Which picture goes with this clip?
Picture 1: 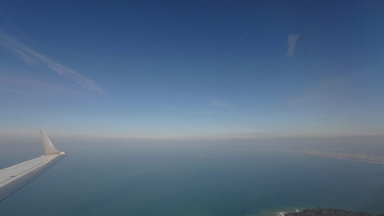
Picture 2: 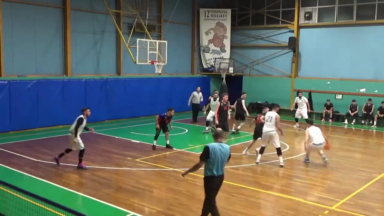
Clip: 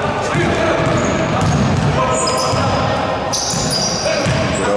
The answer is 2